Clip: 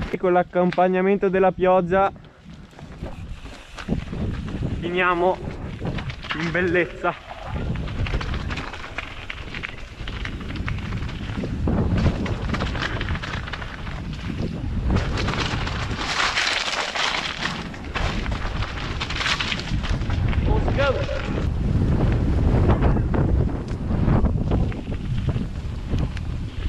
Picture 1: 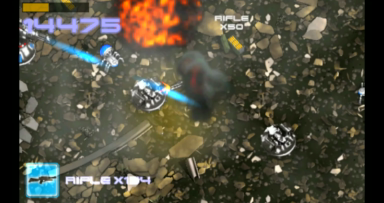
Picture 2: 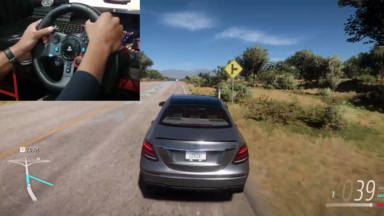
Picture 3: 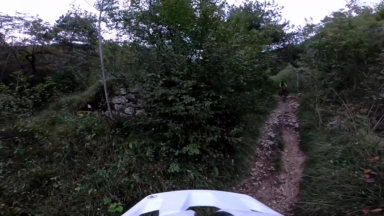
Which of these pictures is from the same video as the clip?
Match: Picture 3